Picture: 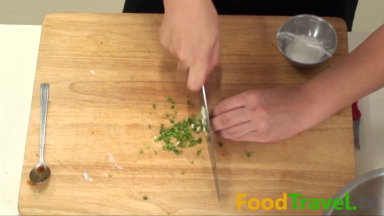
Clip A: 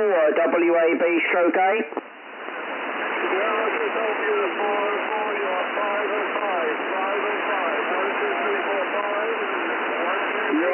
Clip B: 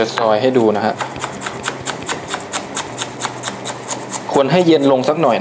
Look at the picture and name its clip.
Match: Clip B